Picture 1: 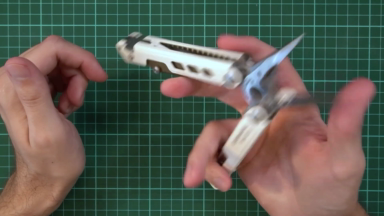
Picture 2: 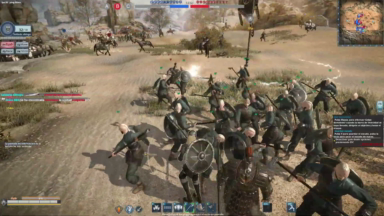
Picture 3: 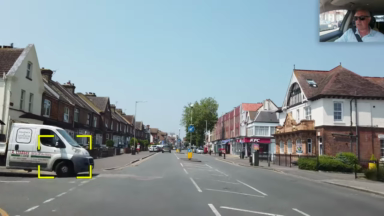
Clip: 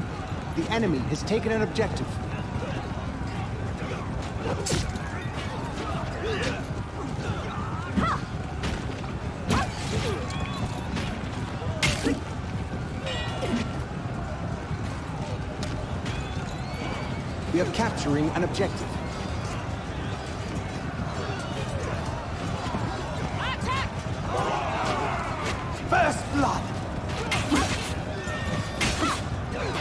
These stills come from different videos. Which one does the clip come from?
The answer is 2